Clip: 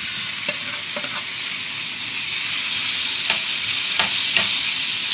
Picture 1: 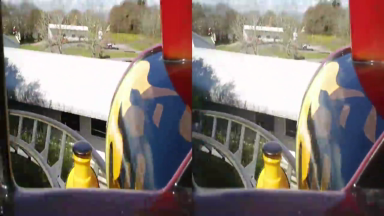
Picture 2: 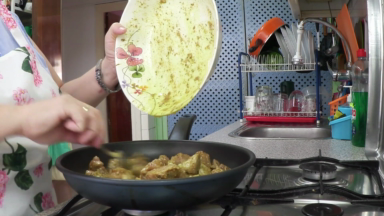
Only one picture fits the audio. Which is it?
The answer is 2